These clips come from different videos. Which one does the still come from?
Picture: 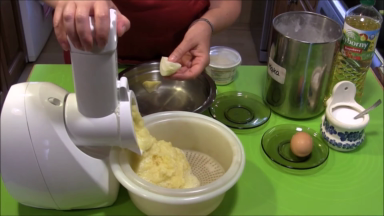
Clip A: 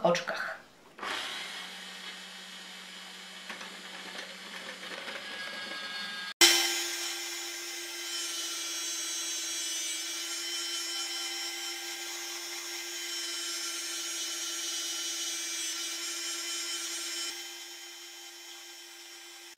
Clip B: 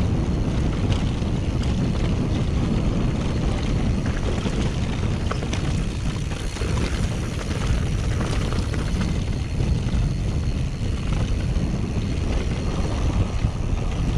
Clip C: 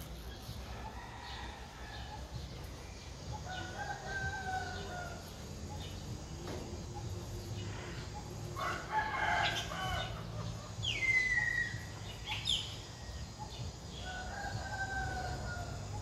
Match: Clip A